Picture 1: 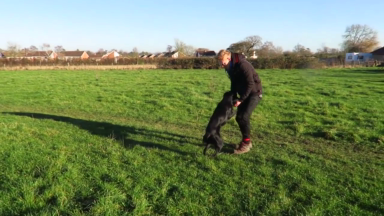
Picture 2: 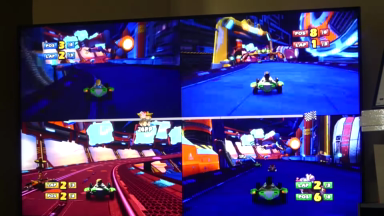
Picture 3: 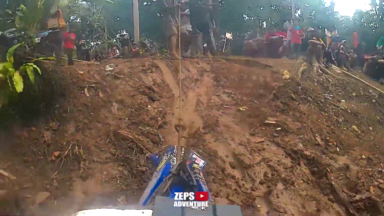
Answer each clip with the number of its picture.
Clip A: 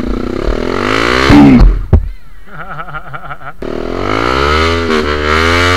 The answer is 3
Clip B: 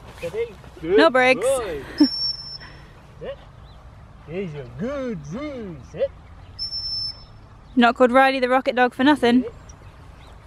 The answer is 1